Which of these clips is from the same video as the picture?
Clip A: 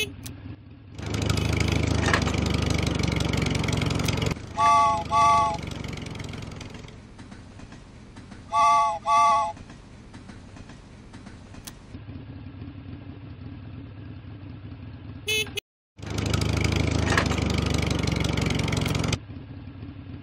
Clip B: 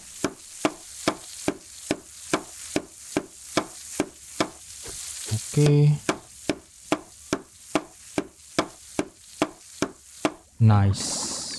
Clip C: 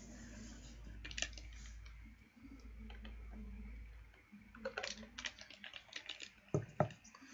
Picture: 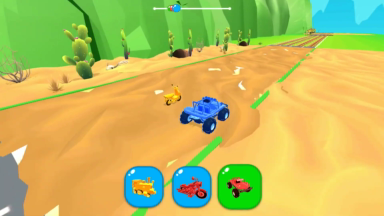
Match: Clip A